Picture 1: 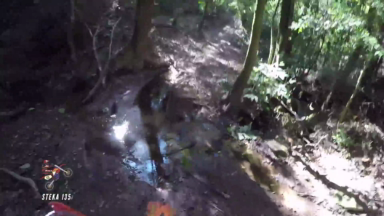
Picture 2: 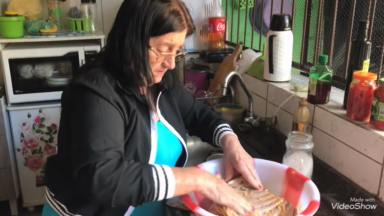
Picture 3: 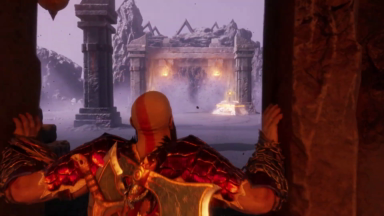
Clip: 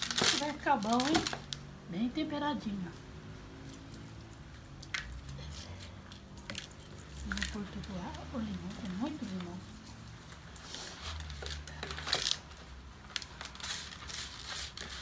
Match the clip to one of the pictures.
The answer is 2